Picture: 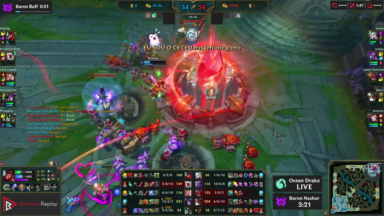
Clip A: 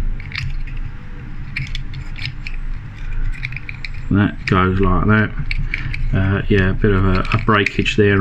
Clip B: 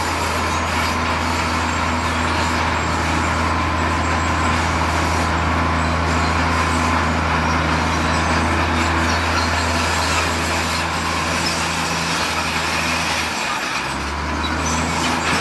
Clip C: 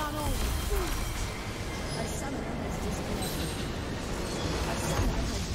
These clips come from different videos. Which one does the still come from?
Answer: C